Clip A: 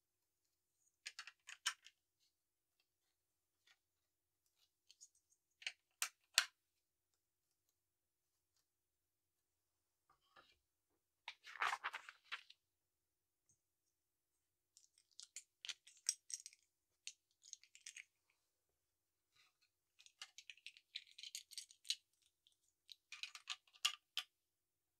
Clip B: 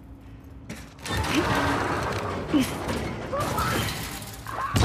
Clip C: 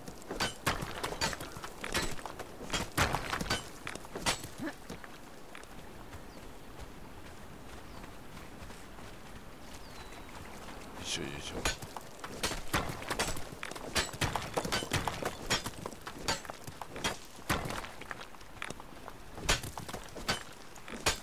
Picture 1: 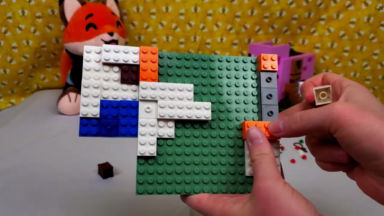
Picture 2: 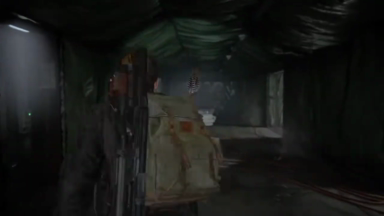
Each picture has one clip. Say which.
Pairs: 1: A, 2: B